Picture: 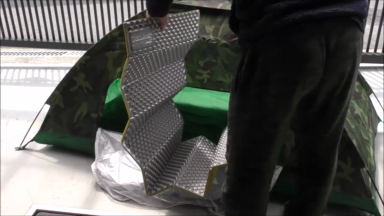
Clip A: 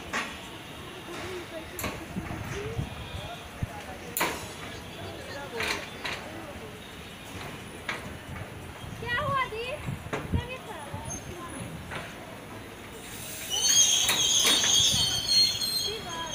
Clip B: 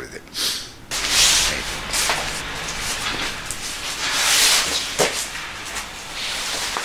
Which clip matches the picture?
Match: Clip B